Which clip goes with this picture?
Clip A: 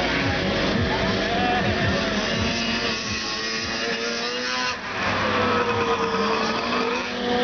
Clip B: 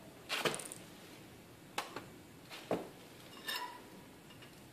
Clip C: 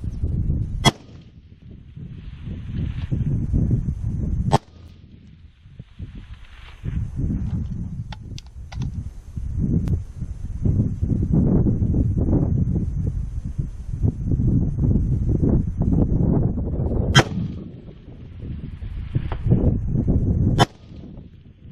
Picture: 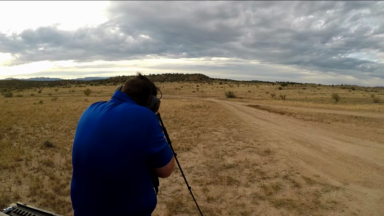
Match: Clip C